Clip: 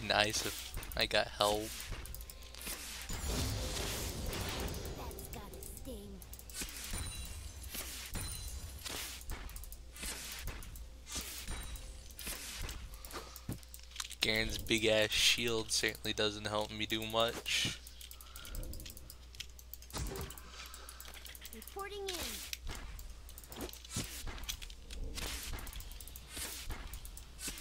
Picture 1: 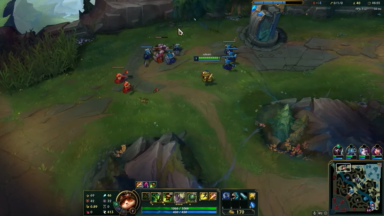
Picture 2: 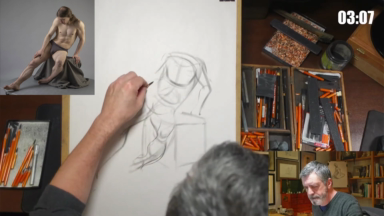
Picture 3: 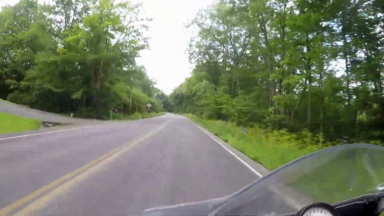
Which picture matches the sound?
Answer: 1